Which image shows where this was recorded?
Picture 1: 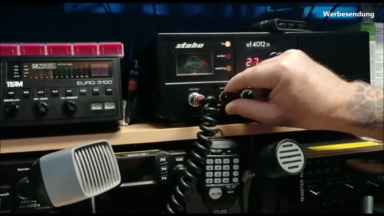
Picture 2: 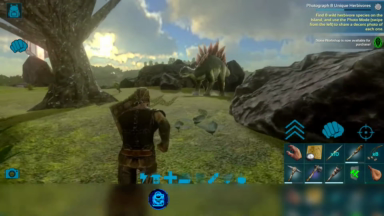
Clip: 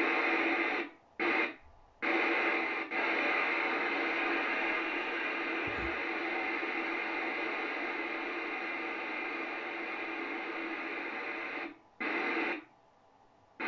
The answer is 1